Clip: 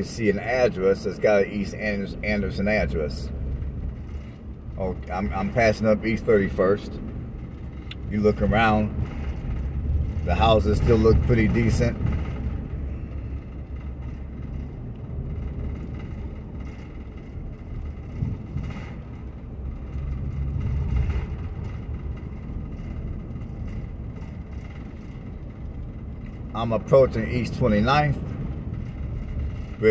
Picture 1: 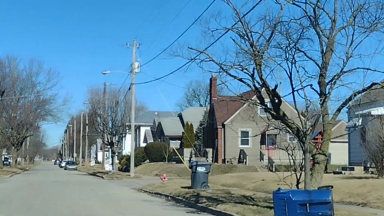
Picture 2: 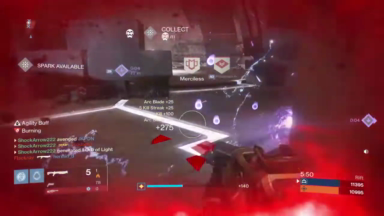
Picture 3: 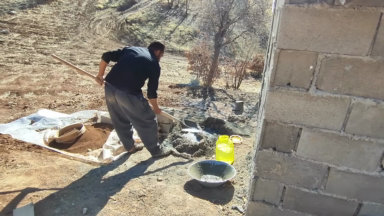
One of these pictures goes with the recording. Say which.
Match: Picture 1